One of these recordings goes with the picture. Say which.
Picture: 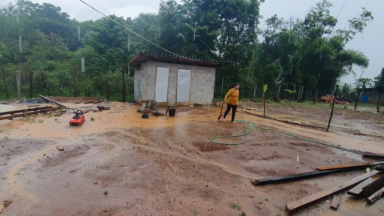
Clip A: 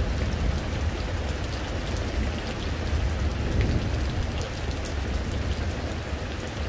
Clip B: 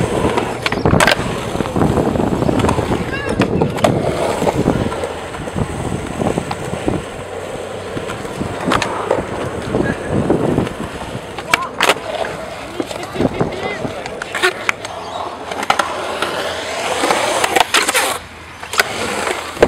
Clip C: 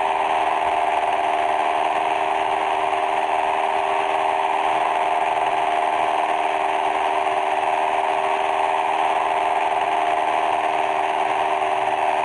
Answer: A